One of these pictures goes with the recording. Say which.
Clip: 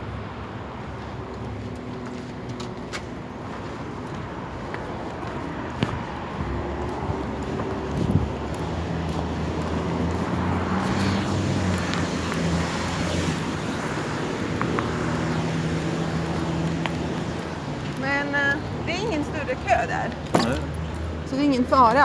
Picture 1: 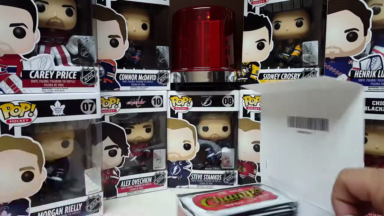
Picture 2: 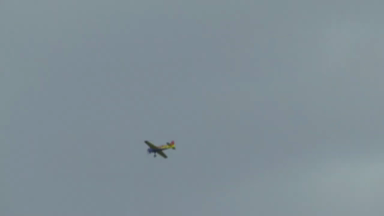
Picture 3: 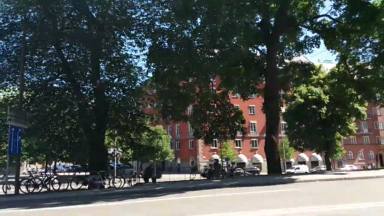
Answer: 3